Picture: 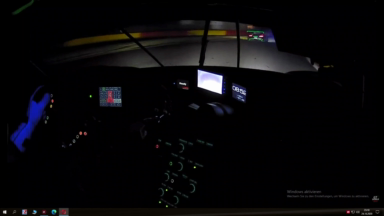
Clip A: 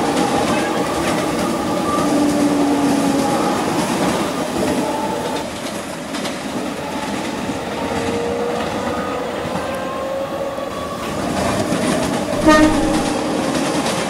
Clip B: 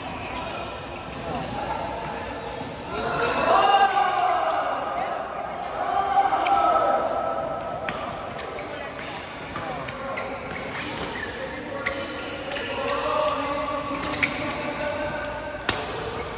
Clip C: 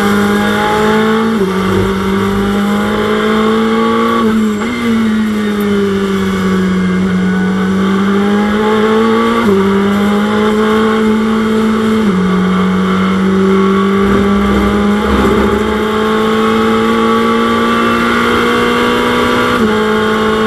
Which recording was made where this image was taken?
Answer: C